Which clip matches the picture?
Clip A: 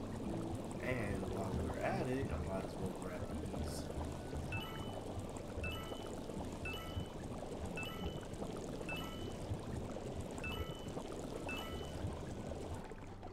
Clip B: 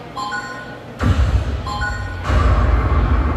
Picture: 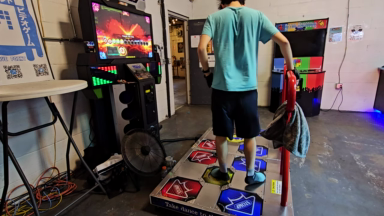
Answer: B